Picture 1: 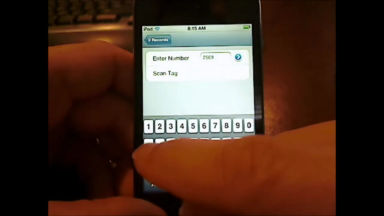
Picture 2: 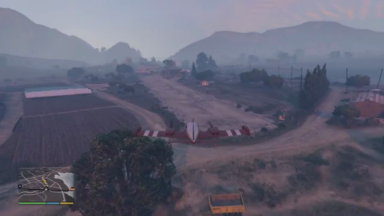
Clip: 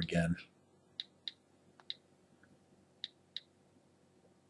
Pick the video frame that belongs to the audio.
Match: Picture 1